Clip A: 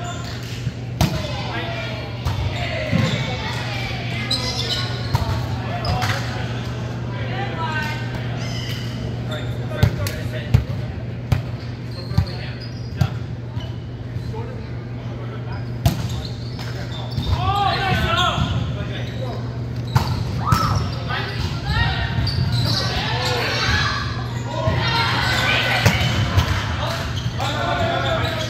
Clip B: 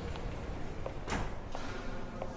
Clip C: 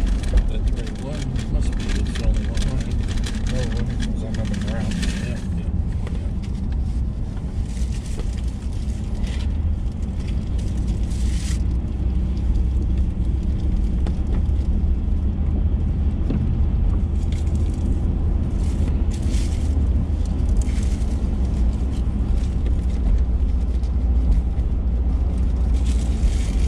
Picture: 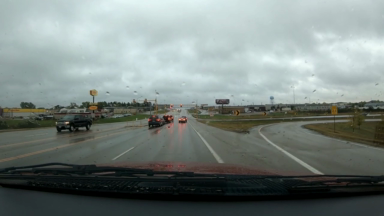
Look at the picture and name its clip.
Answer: C